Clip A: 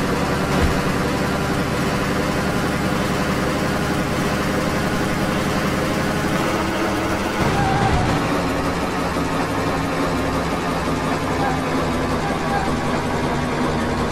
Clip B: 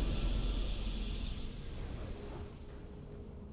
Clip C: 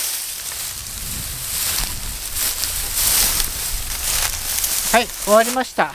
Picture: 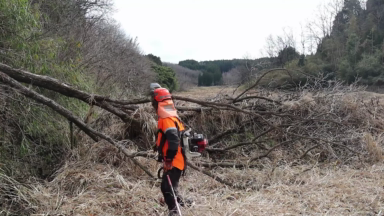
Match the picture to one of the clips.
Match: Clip C